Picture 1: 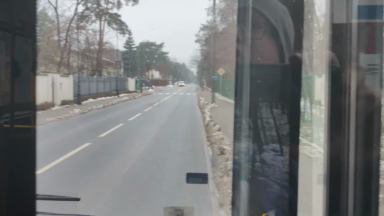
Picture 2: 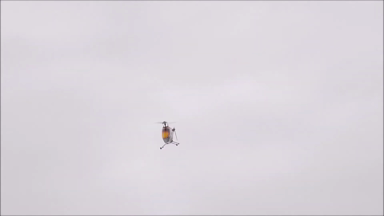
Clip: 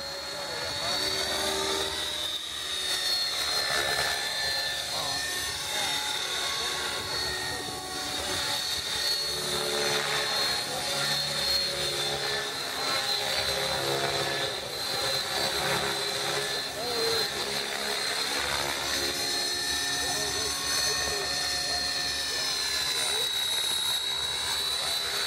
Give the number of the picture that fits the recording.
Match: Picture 2